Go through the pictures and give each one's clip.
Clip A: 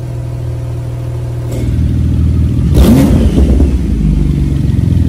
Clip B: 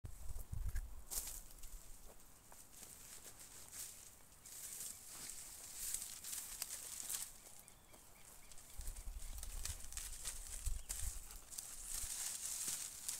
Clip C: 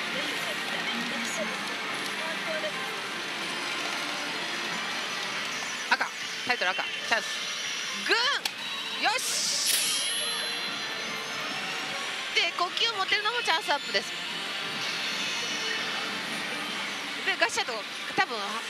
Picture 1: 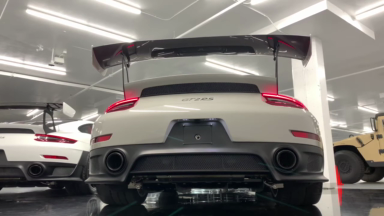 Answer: A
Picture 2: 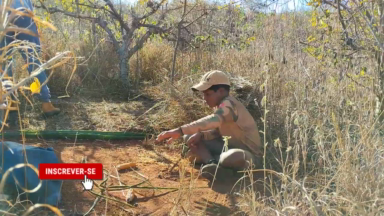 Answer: B